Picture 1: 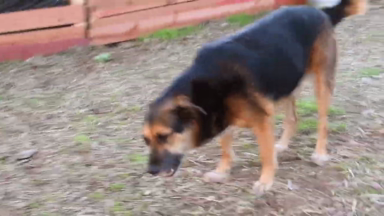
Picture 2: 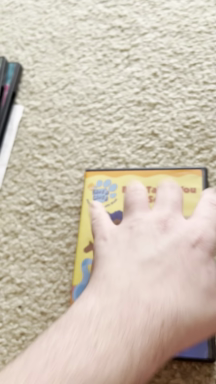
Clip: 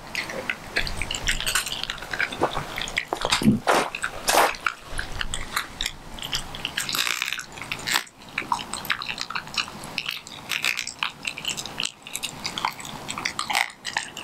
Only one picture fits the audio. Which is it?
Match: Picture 1